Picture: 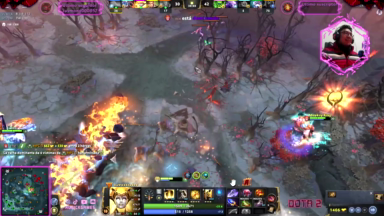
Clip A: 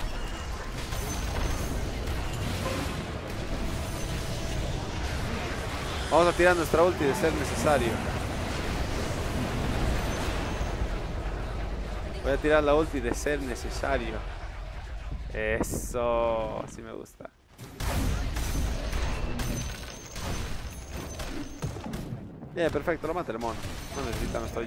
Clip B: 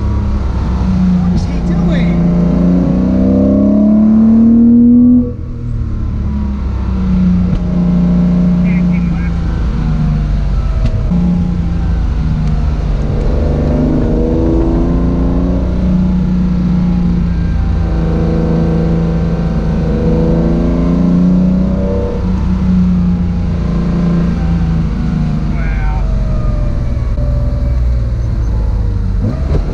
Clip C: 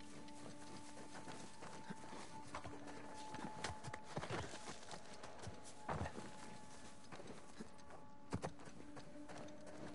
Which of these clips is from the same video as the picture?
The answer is A